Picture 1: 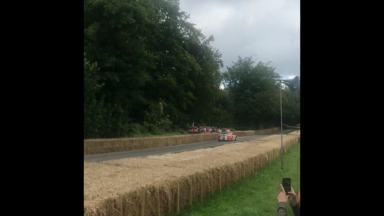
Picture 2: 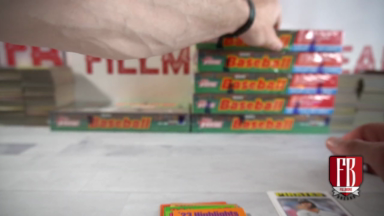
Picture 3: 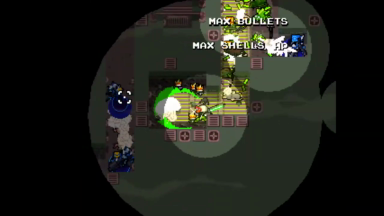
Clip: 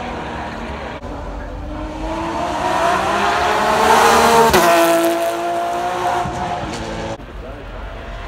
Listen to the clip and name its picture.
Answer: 1